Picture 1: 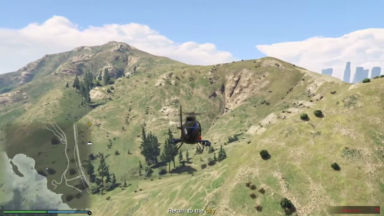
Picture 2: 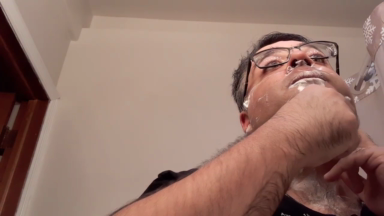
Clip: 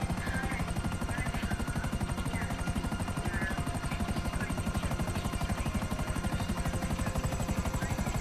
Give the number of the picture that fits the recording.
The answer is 1